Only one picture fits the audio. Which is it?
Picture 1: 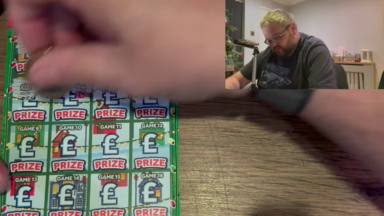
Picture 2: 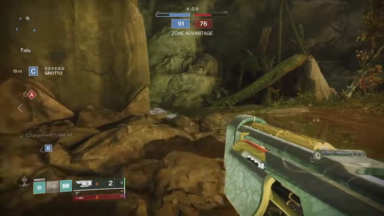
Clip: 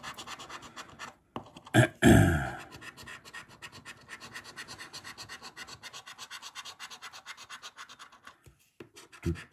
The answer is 1